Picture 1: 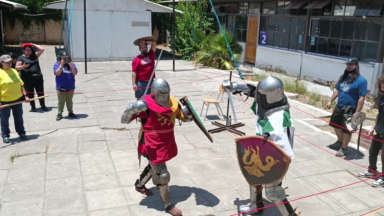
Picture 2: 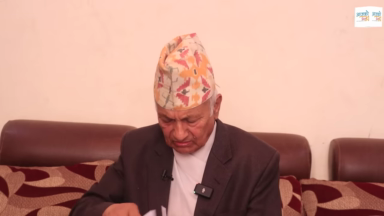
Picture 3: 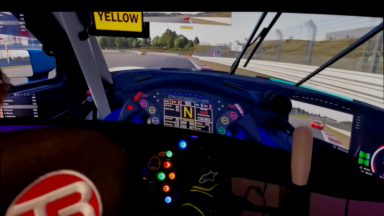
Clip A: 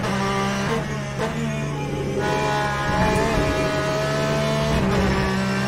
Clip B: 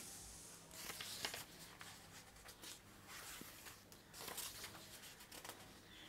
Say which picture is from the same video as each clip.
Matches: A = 3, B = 2